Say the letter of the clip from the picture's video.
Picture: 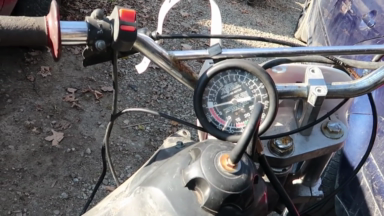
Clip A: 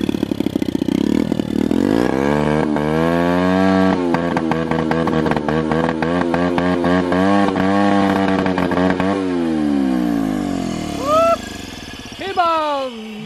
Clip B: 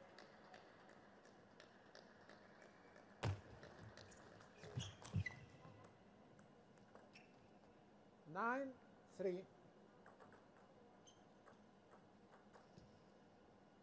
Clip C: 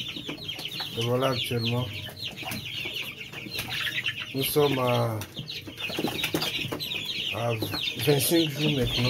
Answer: A